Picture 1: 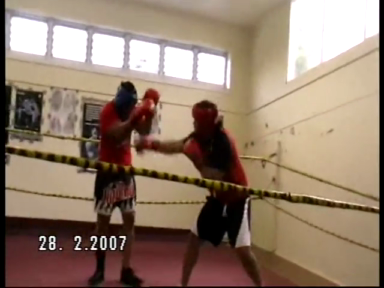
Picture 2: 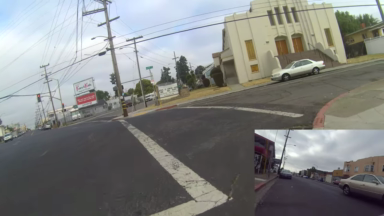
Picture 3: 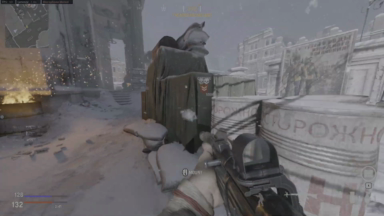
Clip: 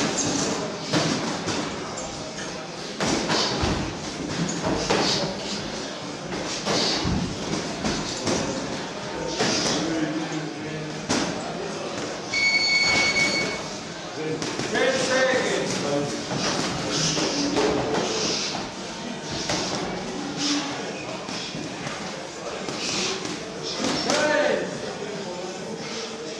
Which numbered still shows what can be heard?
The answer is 1